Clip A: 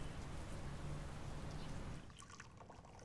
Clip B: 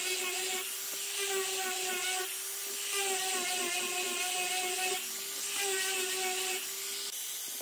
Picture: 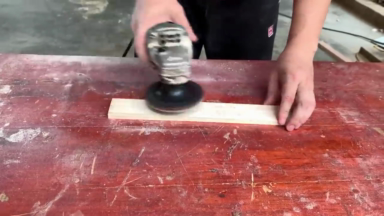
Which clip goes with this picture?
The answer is B